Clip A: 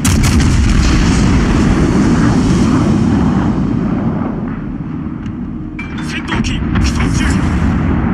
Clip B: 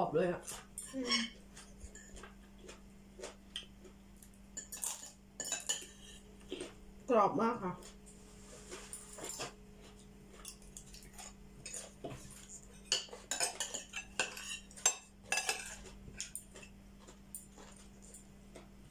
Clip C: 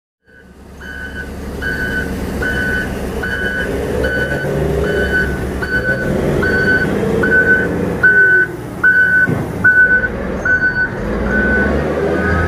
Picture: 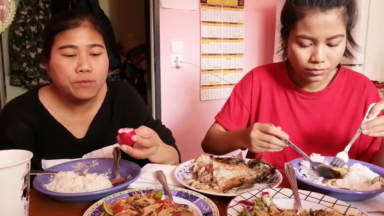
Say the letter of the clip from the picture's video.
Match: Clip B